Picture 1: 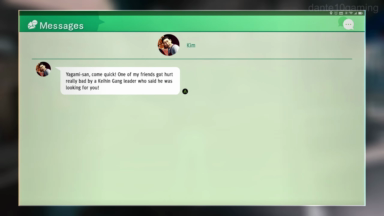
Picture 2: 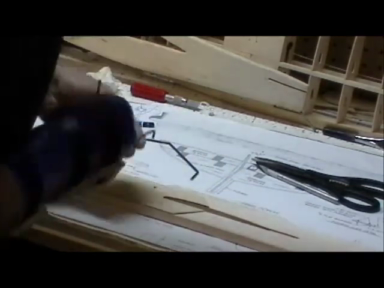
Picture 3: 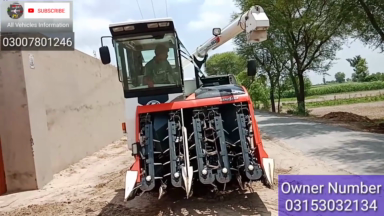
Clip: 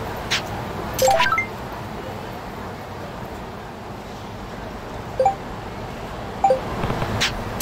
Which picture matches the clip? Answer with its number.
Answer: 1